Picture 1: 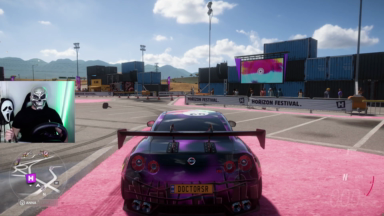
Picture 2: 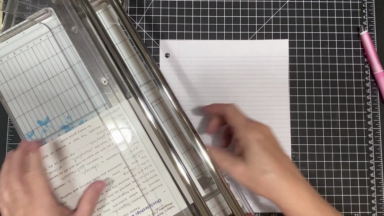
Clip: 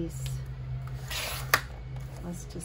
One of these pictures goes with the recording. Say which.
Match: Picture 2